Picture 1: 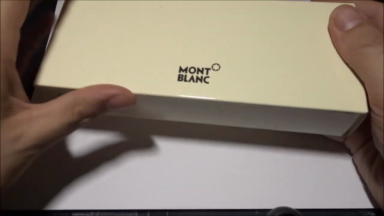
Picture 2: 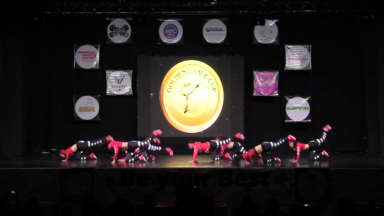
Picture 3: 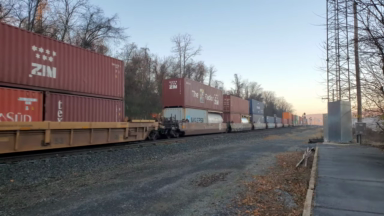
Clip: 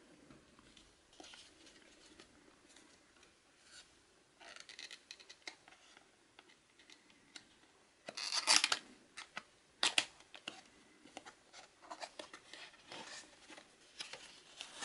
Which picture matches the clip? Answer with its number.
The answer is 1